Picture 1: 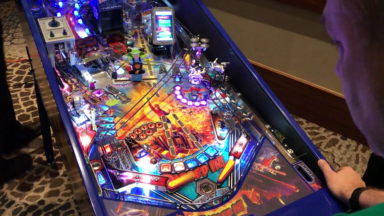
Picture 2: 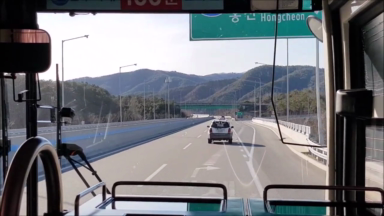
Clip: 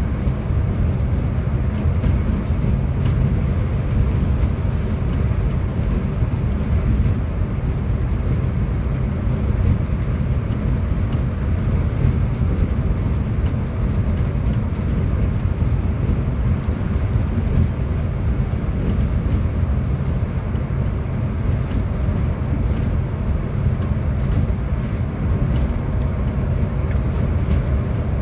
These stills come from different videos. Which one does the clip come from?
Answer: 2